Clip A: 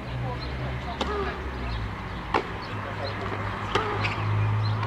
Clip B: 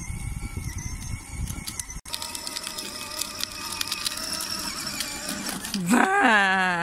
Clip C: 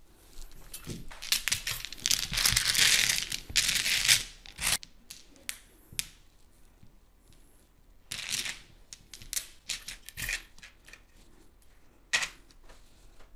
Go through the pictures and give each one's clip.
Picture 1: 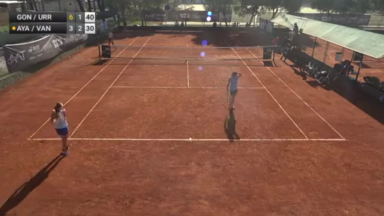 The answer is A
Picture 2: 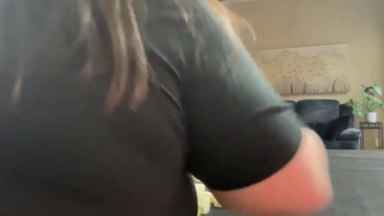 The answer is C